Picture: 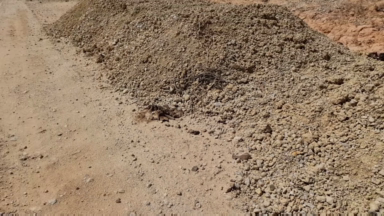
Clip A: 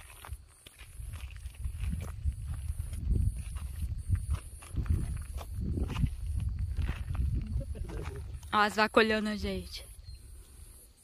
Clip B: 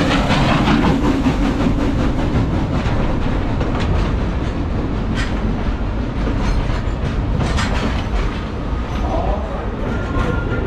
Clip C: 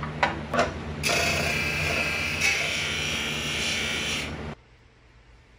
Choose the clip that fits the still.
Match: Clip A